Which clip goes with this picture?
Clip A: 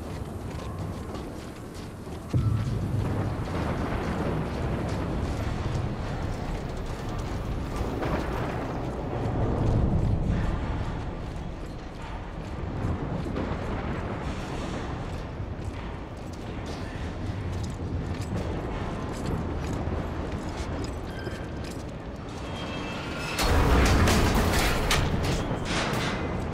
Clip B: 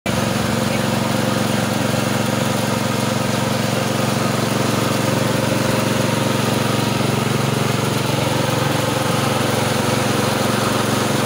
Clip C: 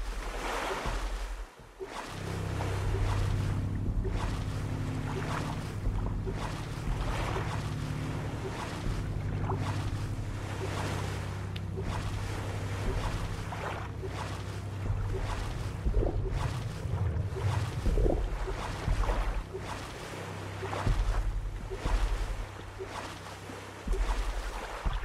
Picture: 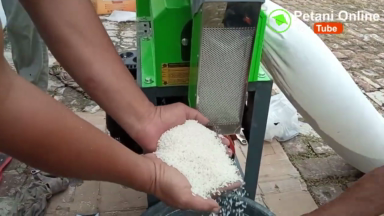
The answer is B